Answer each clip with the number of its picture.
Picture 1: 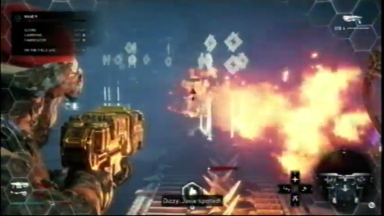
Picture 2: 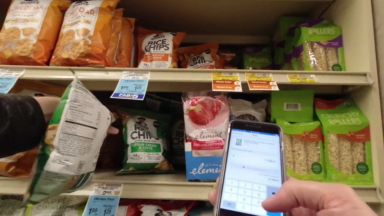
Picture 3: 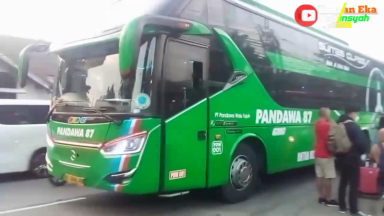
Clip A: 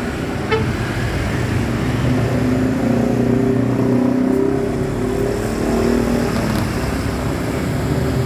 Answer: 3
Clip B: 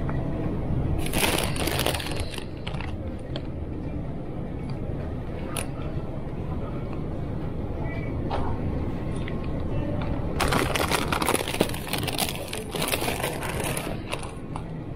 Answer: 2